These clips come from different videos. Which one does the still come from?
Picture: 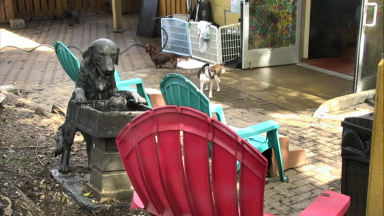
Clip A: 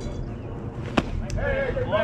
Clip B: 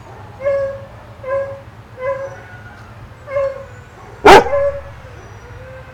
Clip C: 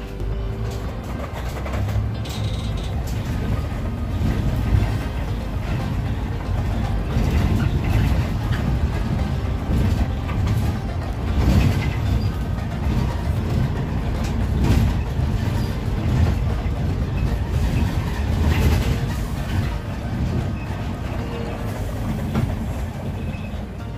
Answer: B